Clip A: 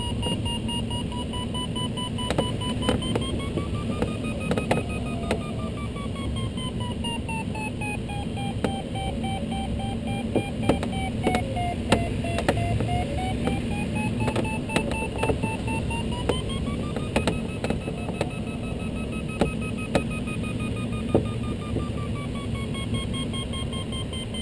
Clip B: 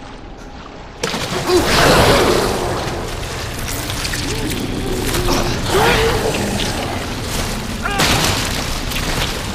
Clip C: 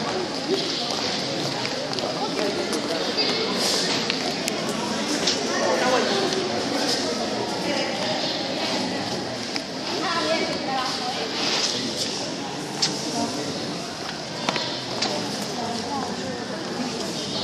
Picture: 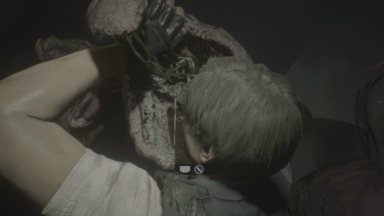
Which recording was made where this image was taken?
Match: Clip B